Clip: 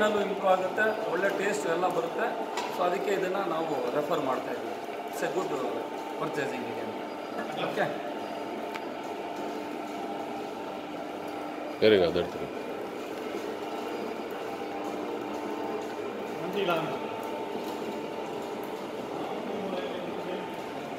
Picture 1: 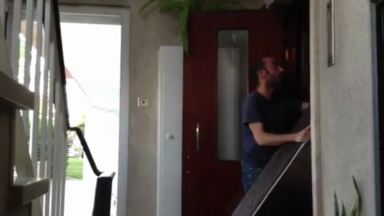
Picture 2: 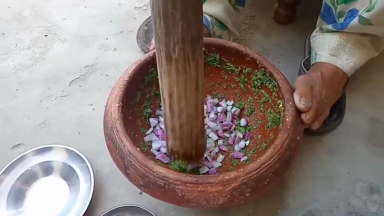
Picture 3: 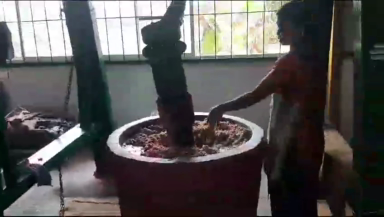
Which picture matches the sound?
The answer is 3